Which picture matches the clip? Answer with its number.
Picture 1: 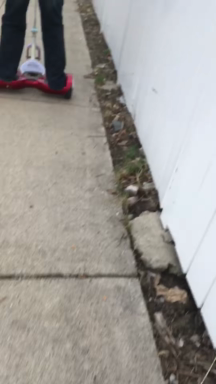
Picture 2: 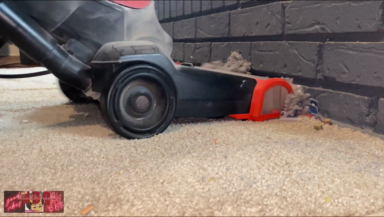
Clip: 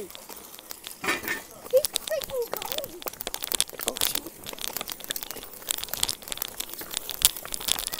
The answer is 1